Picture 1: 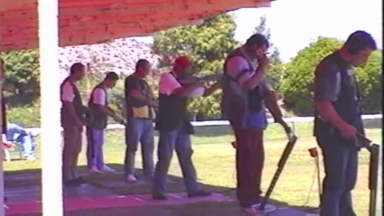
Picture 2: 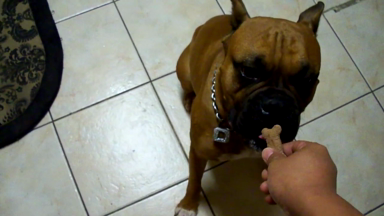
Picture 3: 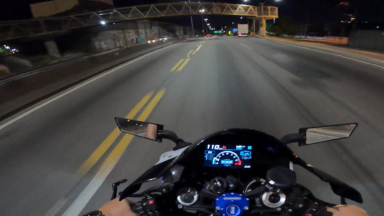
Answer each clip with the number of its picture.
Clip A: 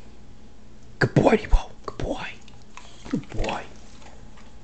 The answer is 2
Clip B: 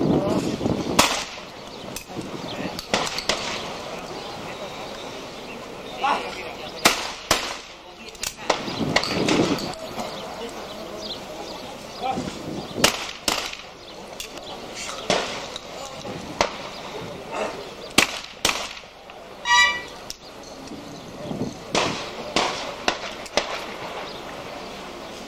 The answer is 1